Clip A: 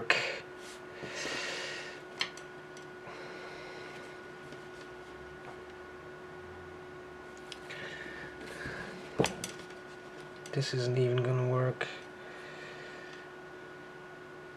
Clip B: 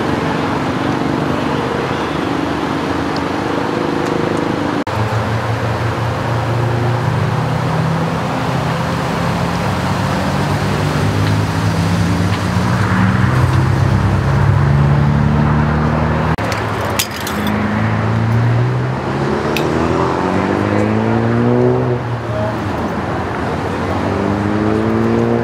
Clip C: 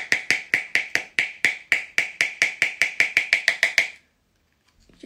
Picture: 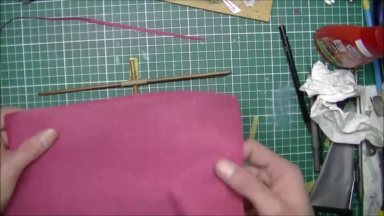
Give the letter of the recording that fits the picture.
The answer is A